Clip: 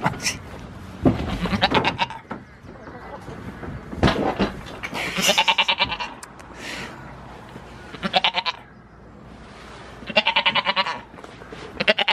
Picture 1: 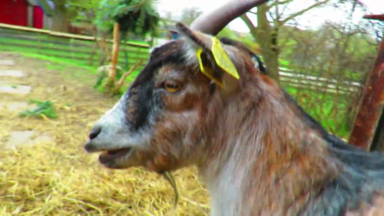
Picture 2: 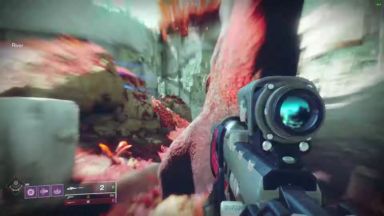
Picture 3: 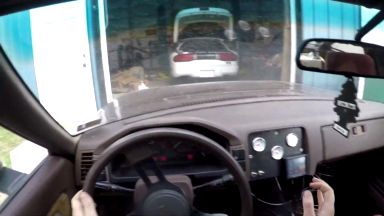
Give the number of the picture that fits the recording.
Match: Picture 1